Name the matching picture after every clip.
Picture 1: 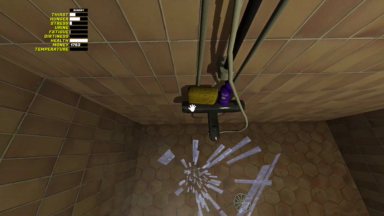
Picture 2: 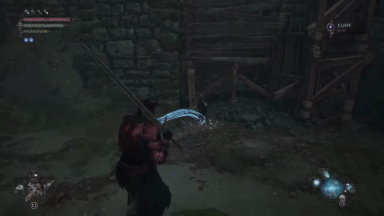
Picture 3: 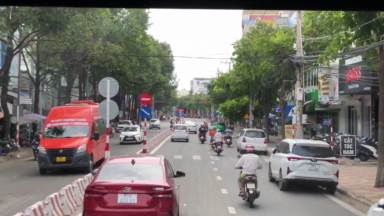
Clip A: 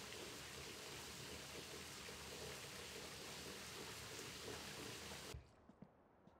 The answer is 1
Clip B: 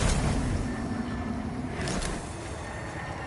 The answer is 2